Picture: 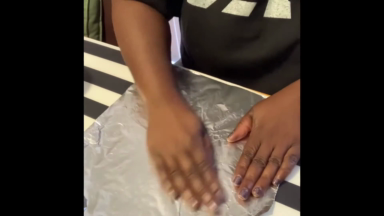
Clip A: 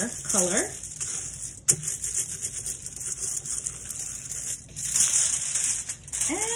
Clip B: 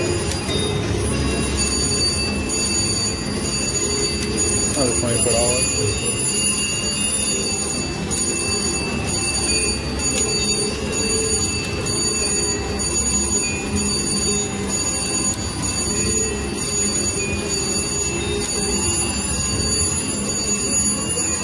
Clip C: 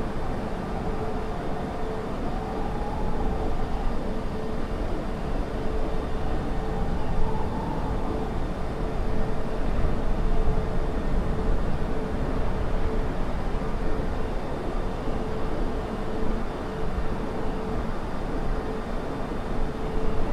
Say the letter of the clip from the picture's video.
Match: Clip A